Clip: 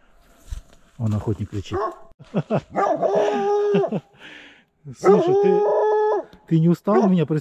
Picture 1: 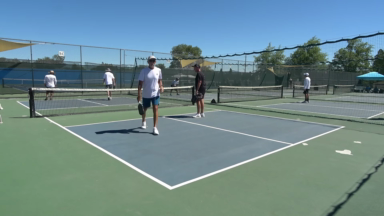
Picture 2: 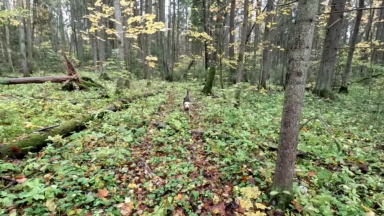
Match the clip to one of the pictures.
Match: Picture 2